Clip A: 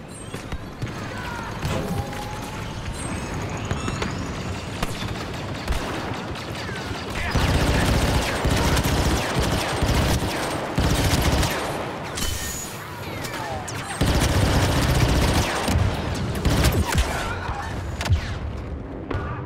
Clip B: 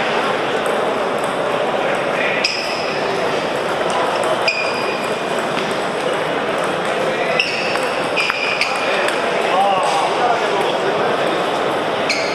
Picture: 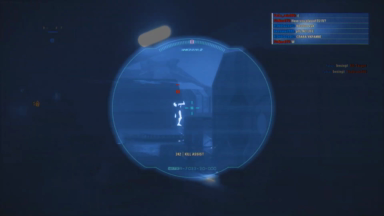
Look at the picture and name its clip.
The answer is A